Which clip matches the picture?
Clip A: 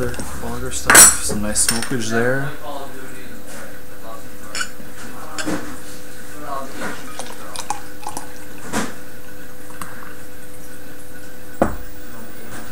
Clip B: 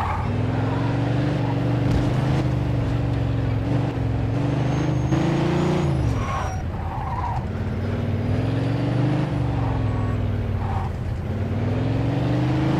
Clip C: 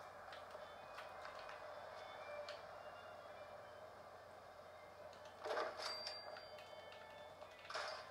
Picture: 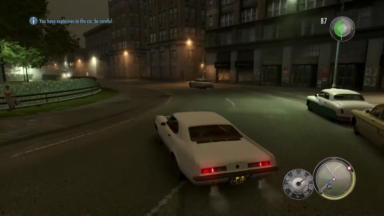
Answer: B